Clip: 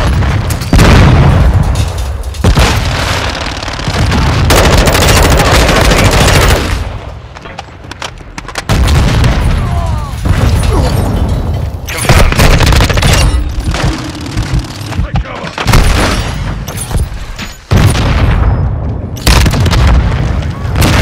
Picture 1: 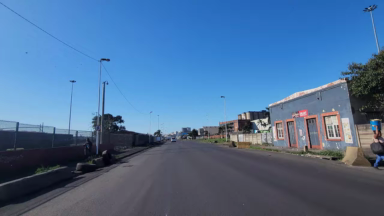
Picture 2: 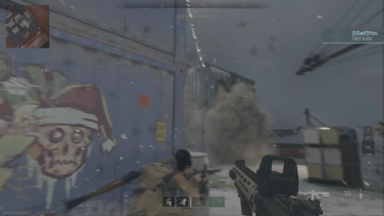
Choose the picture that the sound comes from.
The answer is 2